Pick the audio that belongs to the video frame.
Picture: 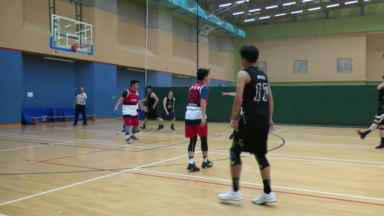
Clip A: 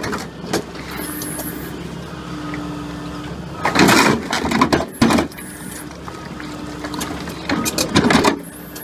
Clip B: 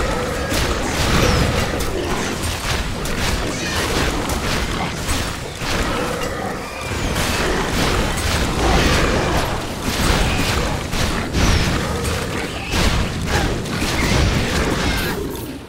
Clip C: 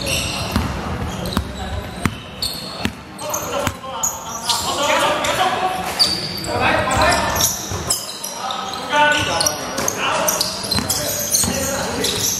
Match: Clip C